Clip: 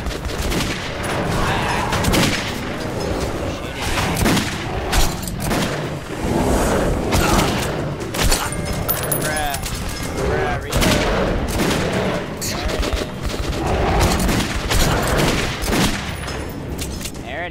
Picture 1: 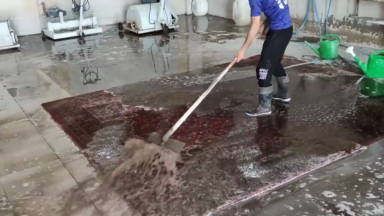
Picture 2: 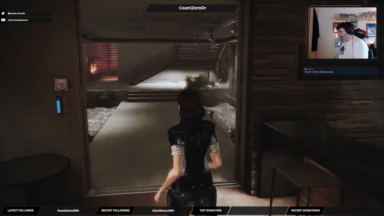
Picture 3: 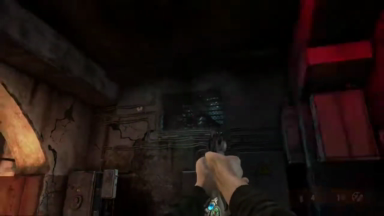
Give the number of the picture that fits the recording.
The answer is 3